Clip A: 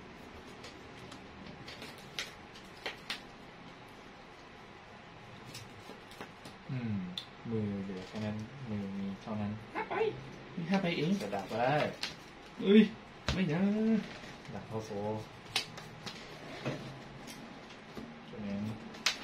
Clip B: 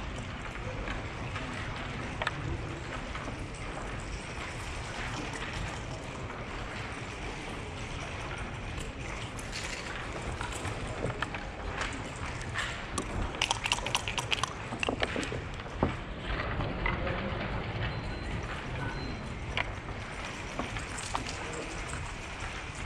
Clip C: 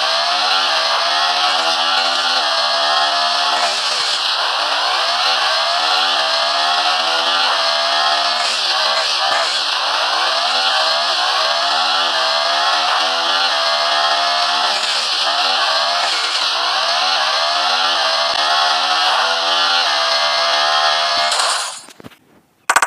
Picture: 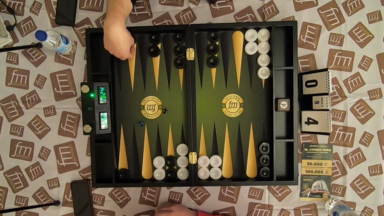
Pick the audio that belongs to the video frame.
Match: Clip B